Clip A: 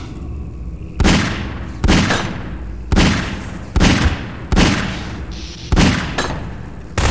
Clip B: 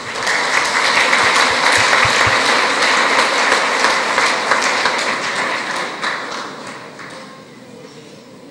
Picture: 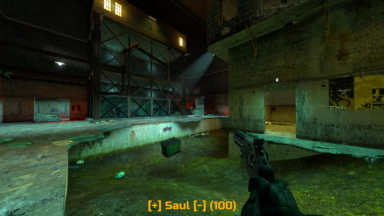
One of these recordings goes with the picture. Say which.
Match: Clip A